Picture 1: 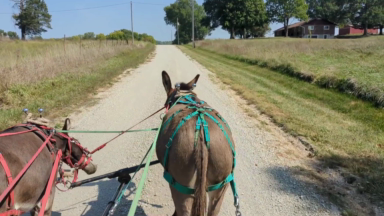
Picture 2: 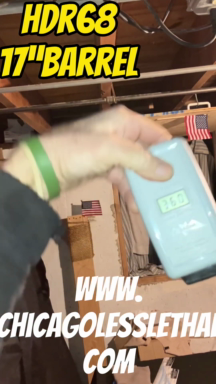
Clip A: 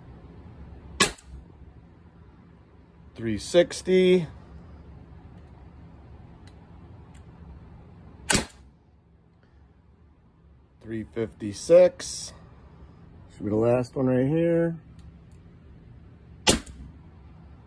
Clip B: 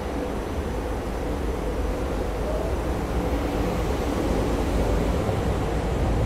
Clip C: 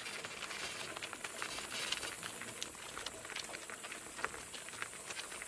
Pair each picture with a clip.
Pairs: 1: C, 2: A